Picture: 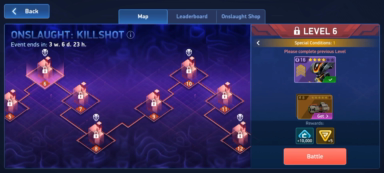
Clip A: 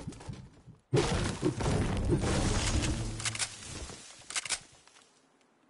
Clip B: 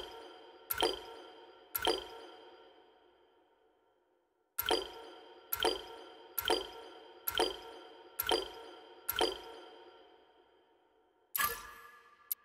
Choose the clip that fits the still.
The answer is B